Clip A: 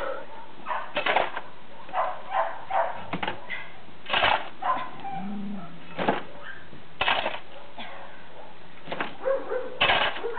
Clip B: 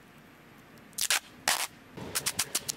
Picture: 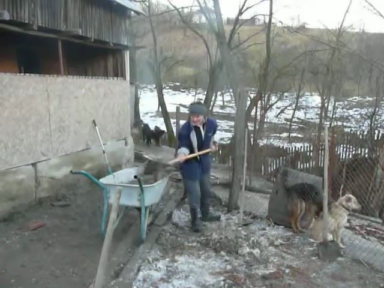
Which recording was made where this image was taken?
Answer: A